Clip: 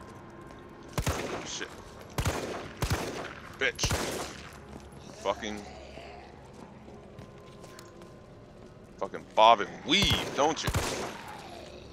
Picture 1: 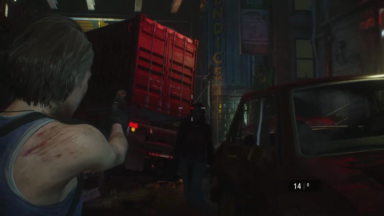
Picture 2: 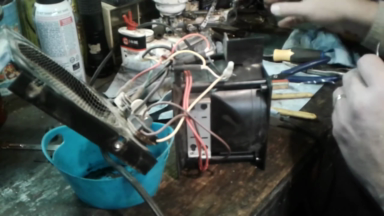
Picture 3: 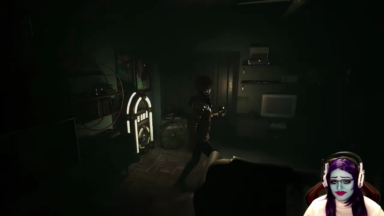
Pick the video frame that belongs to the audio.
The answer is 1